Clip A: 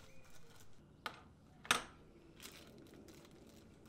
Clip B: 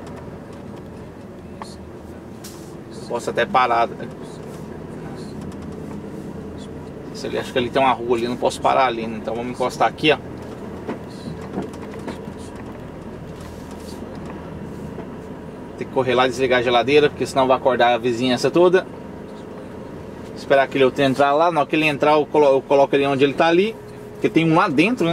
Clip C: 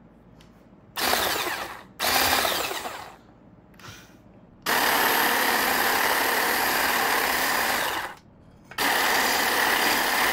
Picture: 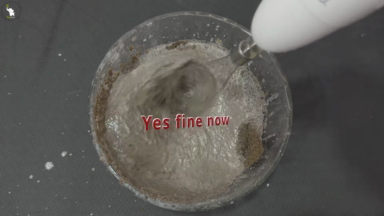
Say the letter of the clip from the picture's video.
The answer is C